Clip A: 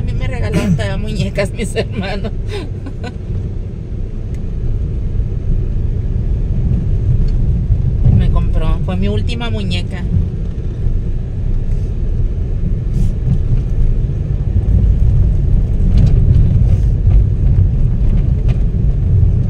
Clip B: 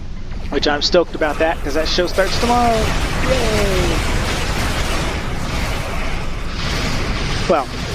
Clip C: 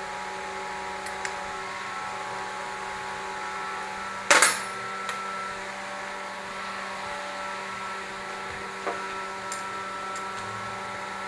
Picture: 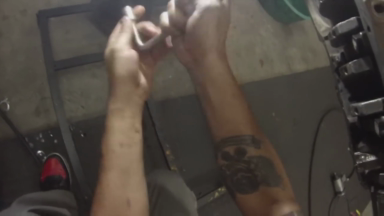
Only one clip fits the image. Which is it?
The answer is C